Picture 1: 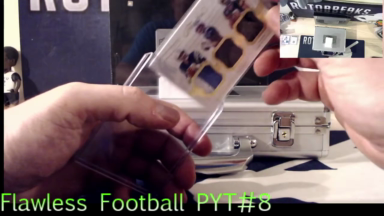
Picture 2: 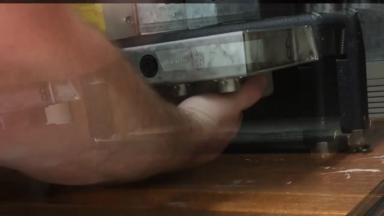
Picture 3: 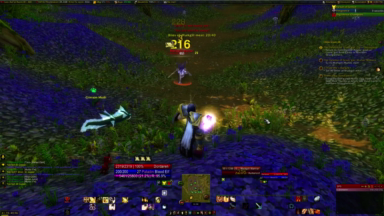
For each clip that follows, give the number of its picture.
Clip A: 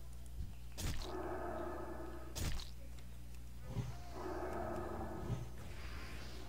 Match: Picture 3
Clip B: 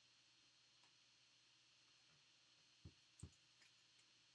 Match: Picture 1